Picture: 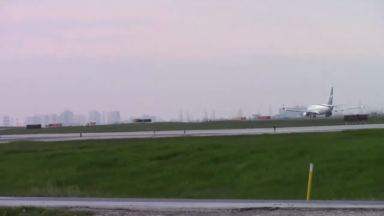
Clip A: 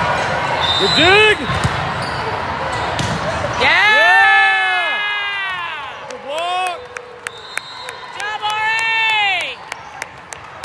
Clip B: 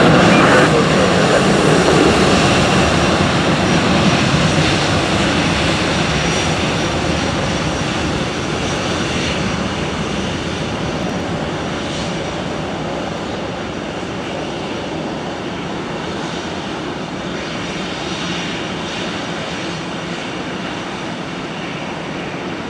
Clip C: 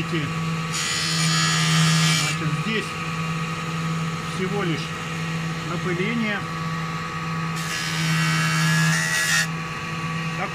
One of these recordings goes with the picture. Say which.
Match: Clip B